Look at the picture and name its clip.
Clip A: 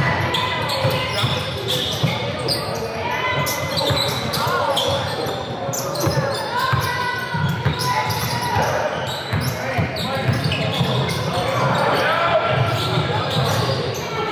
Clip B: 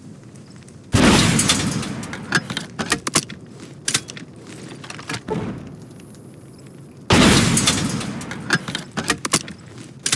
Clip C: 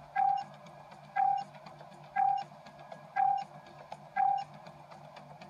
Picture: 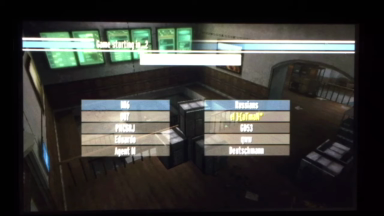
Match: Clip C